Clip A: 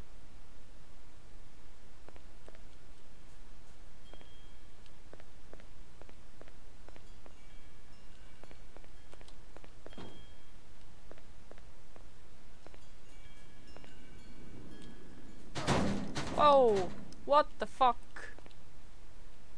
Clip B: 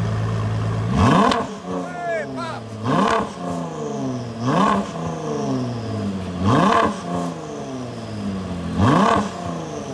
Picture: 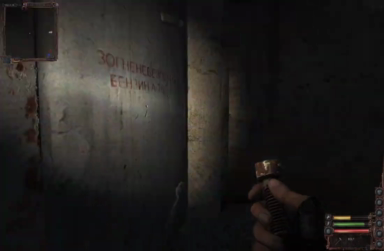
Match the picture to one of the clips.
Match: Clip A